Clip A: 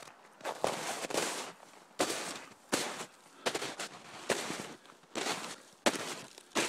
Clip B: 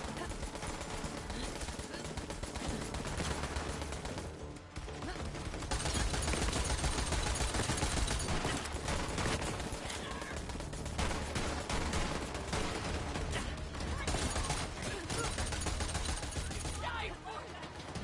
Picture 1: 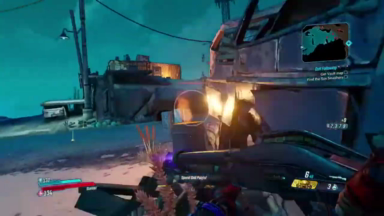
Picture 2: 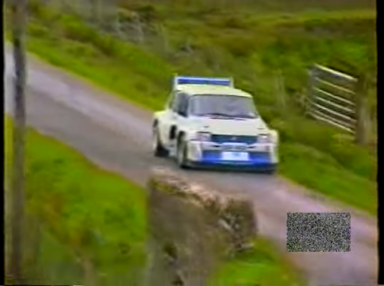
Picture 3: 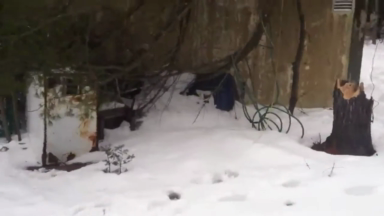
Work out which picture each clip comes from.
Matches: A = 3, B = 1